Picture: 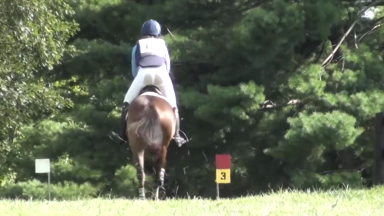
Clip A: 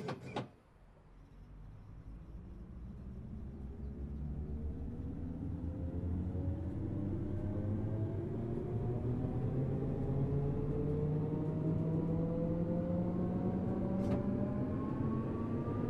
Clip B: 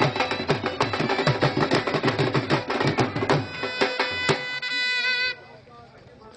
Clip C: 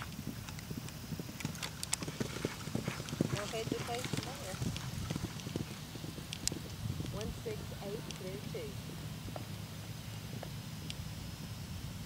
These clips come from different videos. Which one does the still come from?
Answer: C